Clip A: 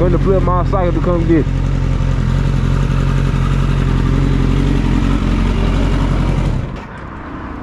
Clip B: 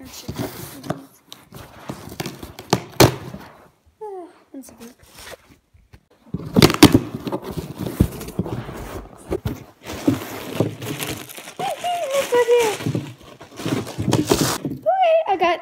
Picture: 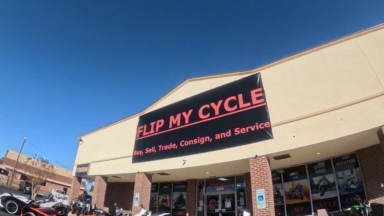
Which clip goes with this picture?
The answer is A